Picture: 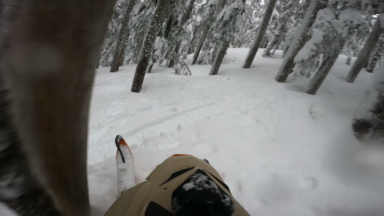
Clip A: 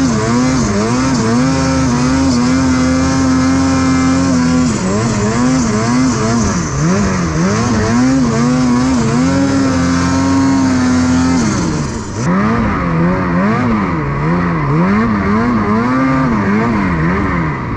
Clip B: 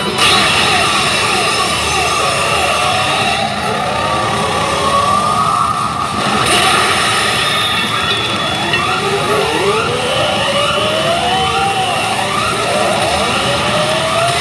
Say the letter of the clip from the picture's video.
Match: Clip A